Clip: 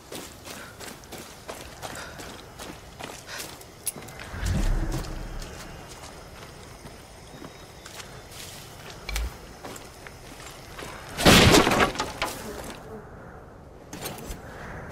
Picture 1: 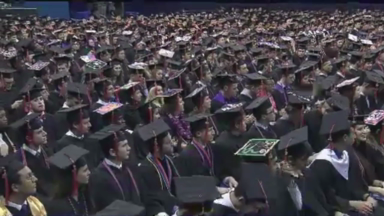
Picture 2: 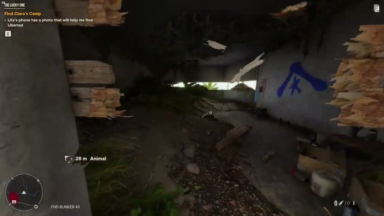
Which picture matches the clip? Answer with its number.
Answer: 2